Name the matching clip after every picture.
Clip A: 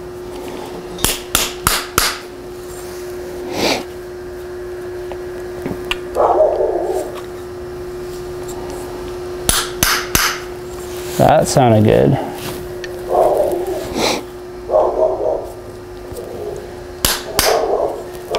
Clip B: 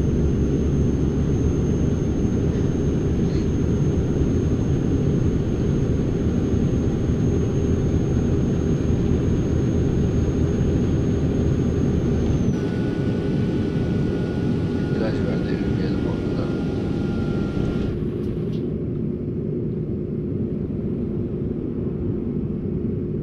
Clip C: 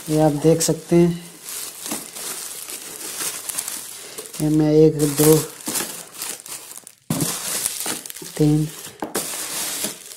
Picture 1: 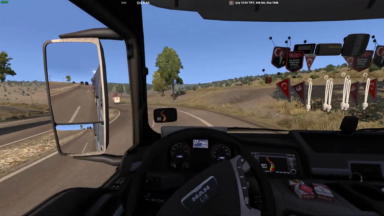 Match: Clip B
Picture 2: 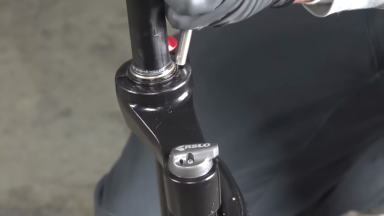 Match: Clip A